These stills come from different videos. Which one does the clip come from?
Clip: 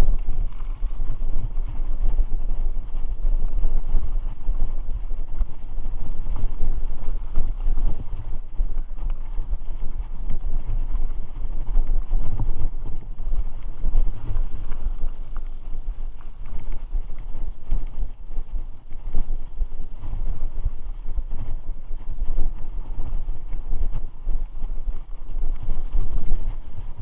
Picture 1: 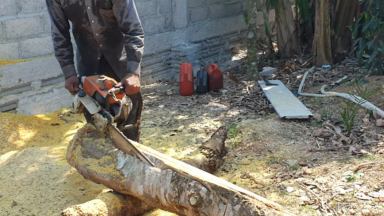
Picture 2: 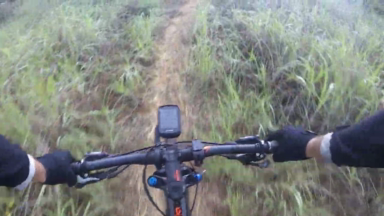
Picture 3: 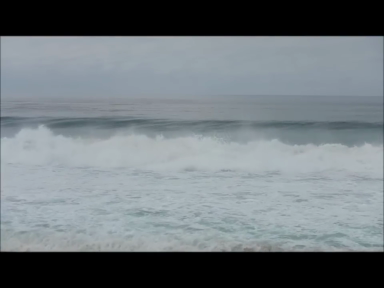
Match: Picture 2